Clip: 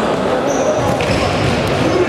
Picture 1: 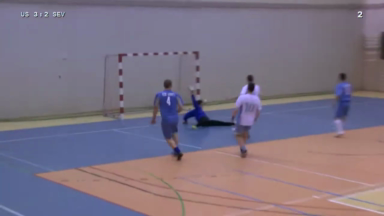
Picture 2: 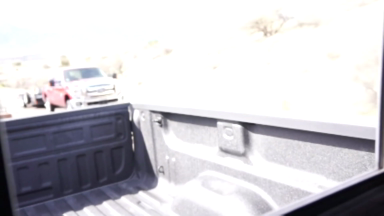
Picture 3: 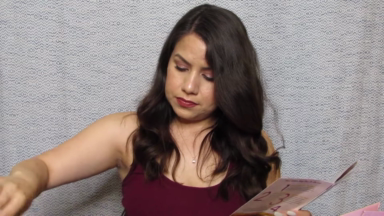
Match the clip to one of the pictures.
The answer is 1